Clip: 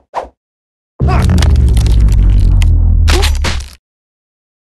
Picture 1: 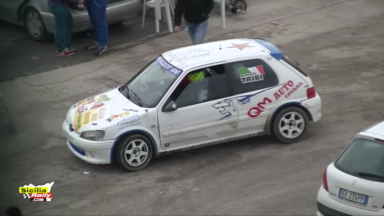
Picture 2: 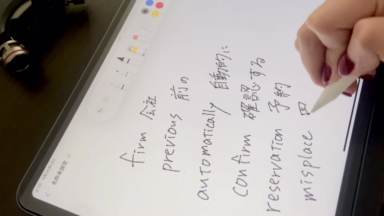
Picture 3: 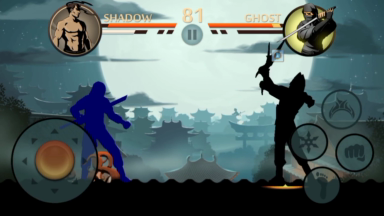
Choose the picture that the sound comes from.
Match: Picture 3